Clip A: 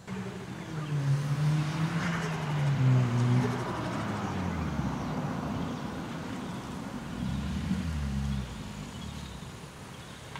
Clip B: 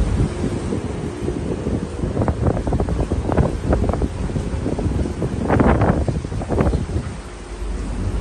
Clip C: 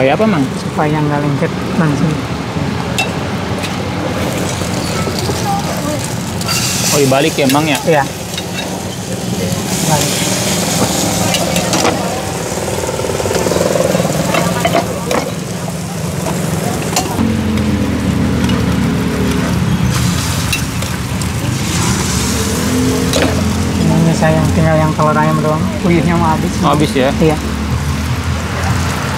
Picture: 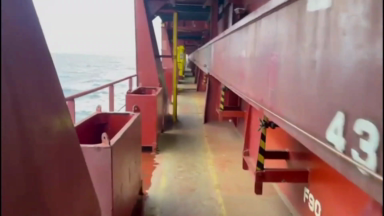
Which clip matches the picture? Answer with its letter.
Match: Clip B